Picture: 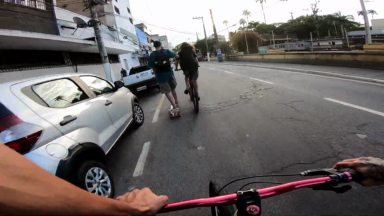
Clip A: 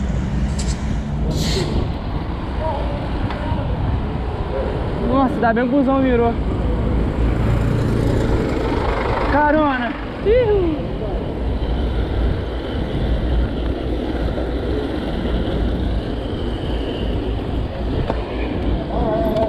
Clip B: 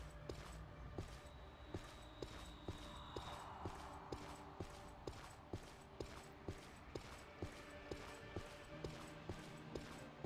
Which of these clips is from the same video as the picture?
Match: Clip A